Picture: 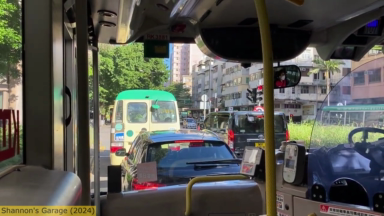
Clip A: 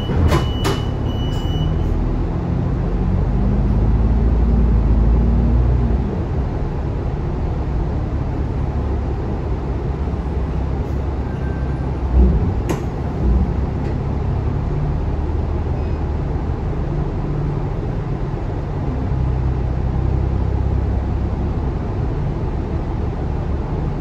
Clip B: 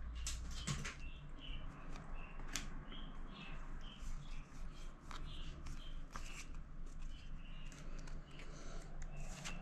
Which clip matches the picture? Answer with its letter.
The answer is A